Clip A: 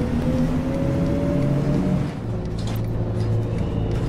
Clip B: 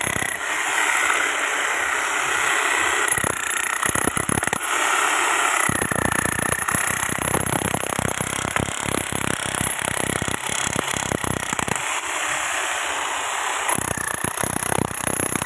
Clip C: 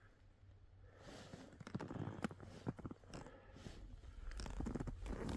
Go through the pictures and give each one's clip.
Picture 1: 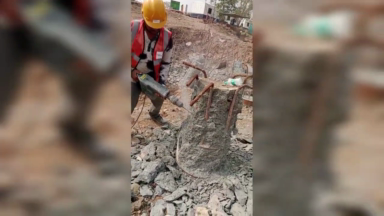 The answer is B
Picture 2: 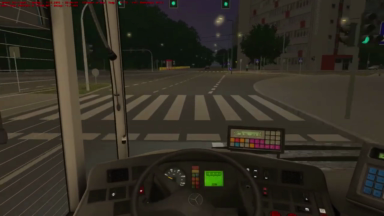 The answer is A